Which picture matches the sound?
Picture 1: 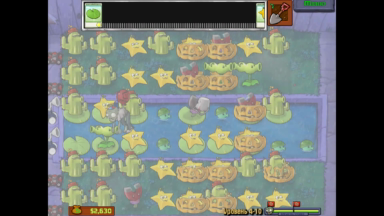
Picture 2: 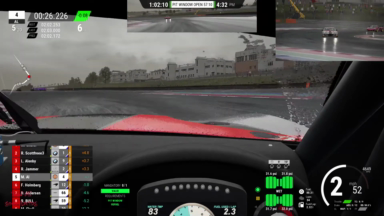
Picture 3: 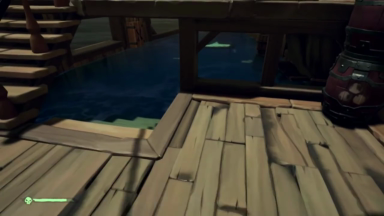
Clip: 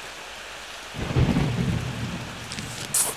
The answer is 1